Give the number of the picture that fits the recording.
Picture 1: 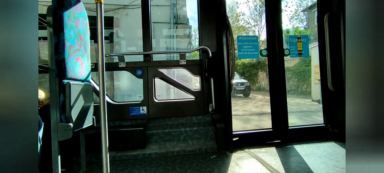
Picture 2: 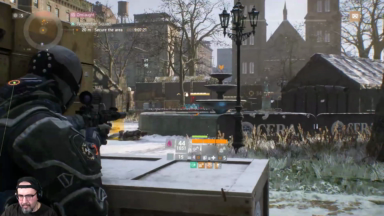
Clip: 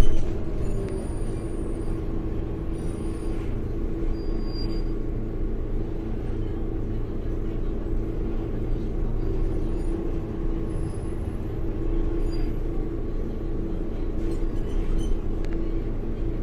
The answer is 1